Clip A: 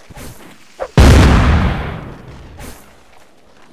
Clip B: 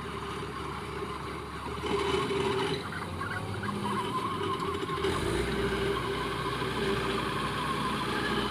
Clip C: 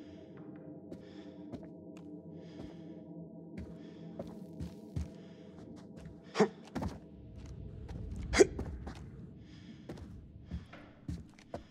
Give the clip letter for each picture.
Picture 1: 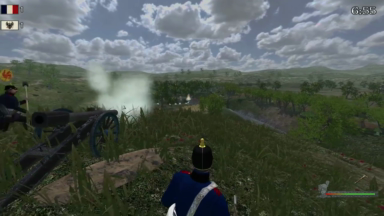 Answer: A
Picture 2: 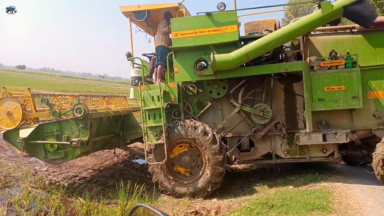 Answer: B